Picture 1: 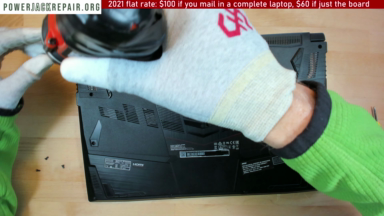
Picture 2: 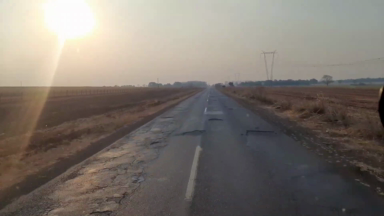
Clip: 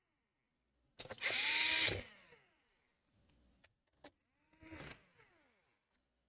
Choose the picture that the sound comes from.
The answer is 1